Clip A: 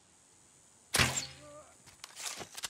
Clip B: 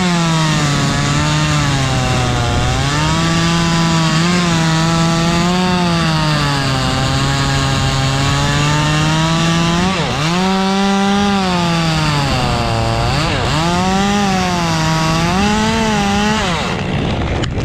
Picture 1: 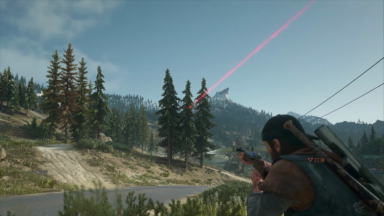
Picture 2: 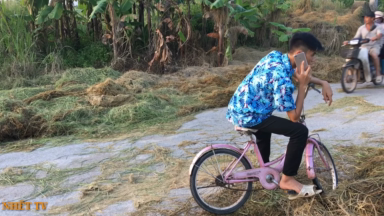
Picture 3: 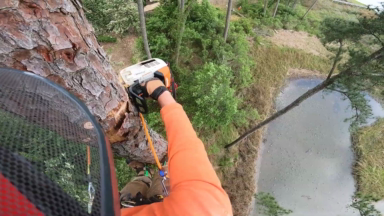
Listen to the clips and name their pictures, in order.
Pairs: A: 1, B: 3